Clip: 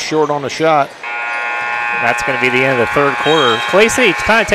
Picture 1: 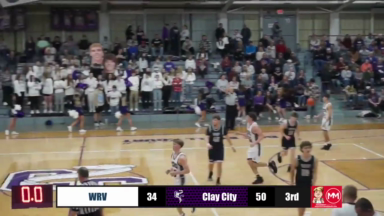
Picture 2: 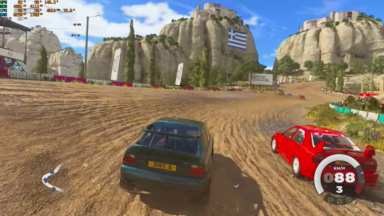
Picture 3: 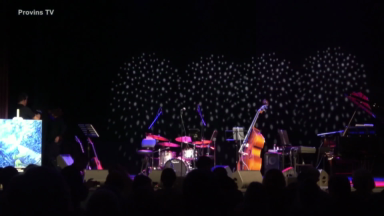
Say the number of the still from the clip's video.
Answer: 1